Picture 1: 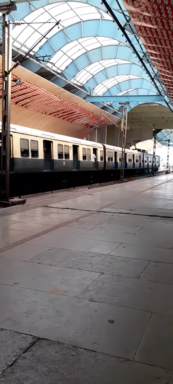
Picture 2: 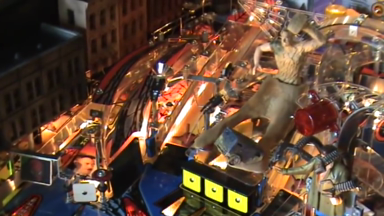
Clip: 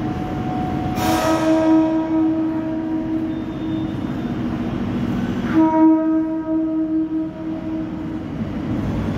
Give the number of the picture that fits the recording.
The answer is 1